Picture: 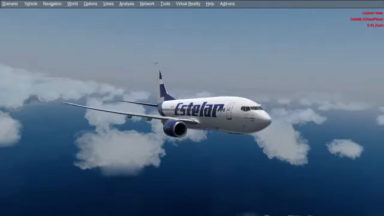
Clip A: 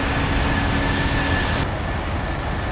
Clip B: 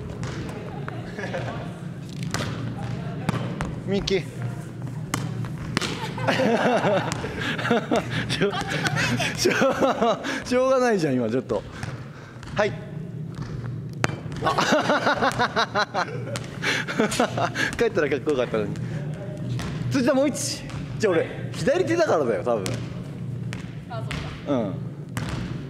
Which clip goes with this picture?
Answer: A